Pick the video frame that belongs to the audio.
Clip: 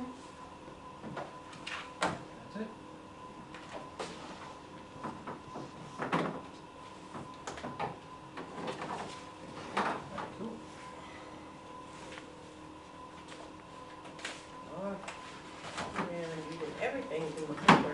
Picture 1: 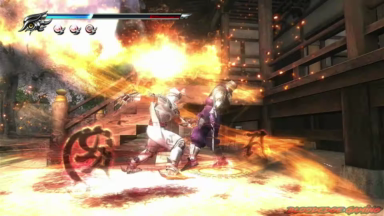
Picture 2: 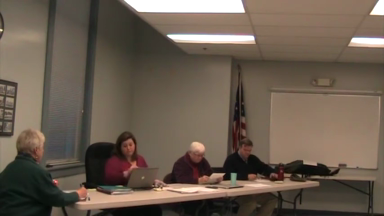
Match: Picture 2